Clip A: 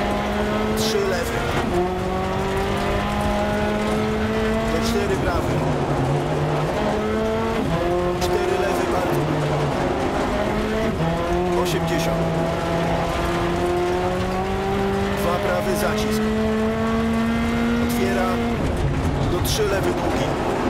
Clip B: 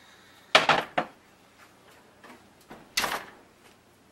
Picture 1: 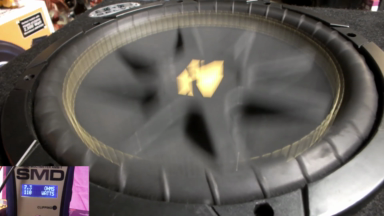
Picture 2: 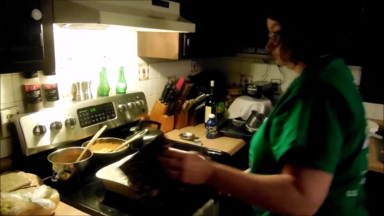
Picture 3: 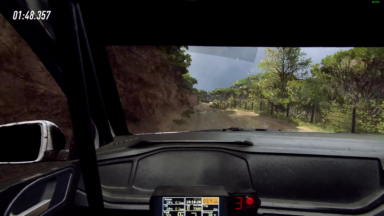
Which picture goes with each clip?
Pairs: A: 3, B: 2